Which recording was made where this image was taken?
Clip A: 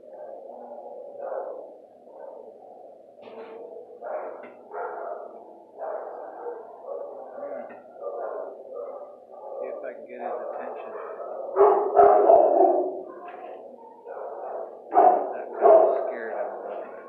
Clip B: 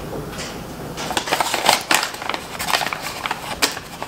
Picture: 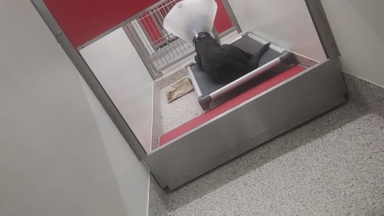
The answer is A